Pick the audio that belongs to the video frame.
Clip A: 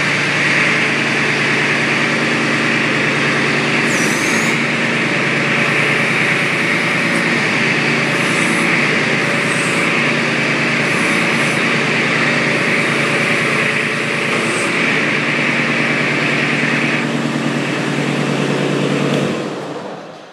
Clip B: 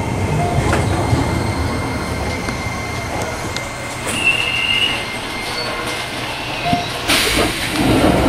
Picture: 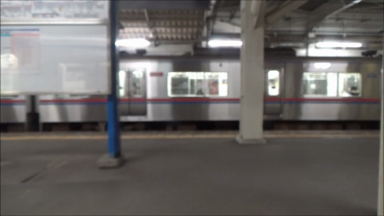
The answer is B